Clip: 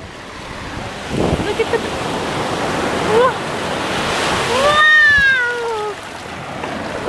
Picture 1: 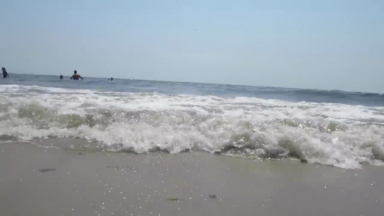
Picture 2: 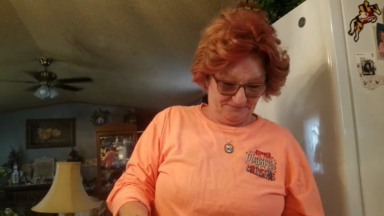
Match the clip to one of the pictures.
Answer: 1